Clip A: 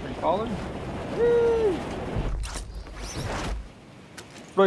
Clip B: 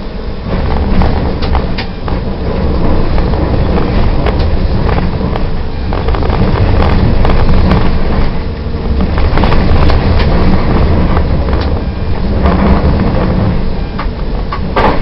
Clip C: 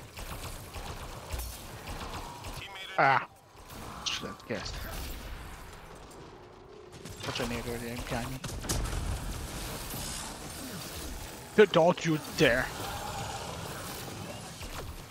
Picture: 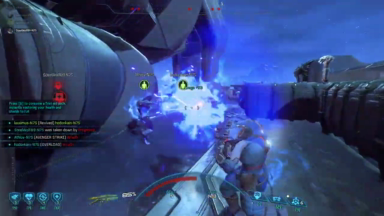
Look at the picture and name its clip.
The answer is C